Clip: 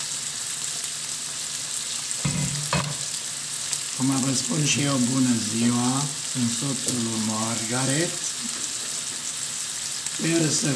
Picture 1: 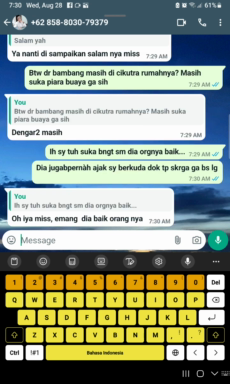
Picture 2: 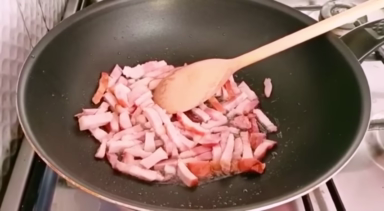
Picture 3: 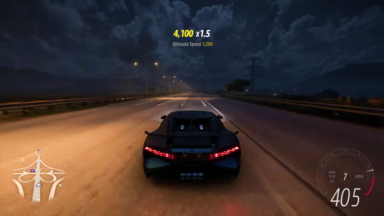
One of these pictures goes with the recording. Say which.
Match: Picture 2